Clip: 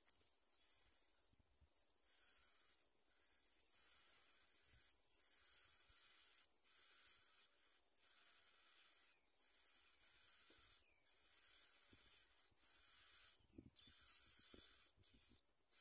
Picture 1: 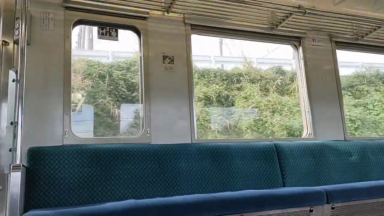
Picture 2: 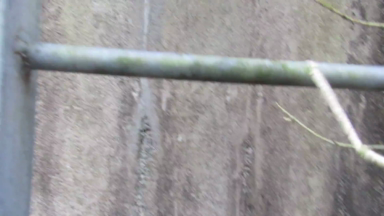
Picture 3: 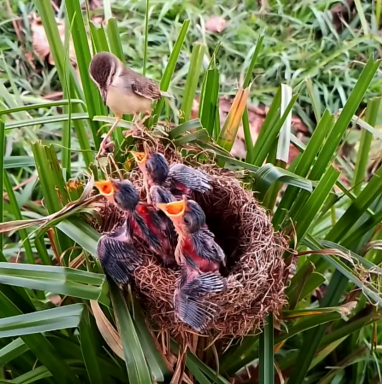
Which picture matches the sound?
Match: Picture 3